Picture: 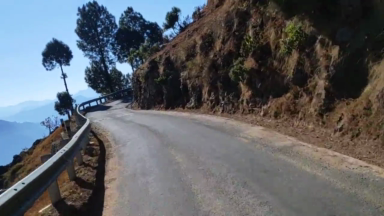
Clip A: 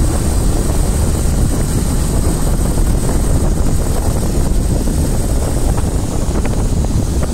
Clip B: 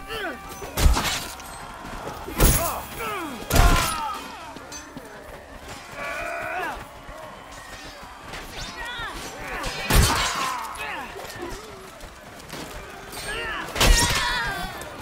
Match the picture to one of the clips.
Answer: A